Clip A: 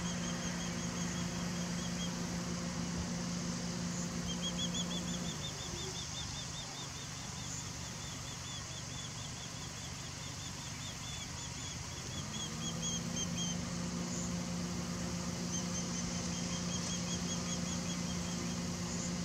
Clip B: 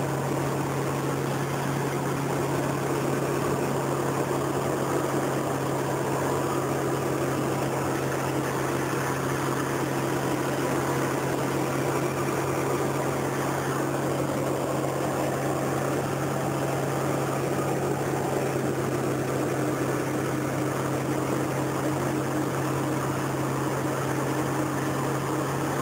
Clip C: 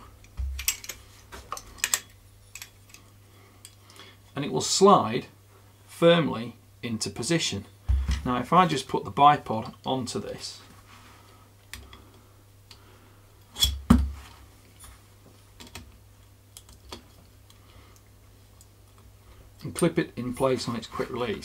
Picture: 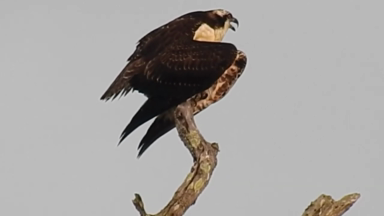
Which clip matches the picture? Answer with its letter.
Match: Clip A